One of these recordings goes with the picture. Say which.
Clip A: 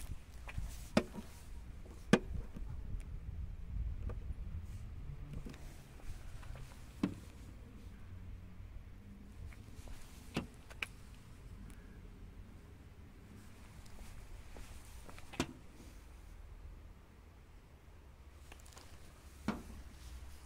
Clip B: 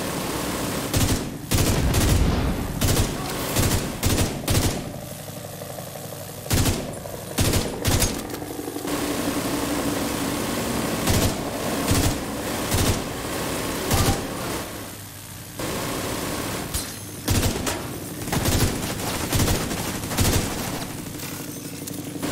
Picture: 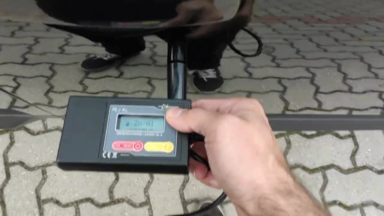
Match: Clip A